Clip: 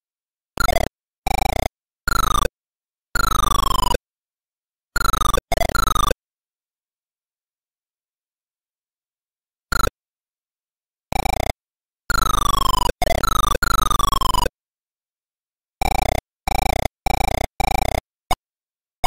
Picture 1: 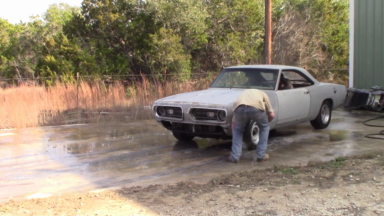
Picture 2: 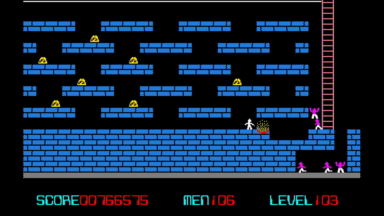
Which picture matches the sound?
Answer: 2